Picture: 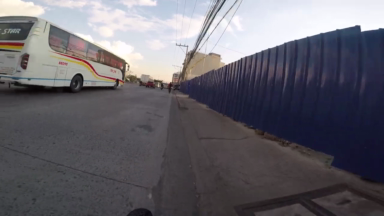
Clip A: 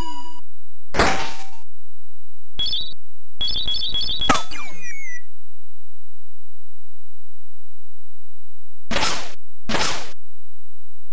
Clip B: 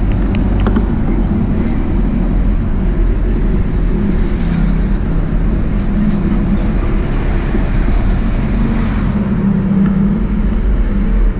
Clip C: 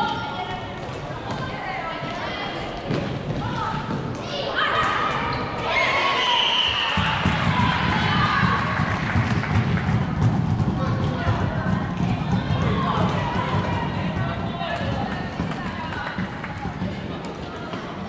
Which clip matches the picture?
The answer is B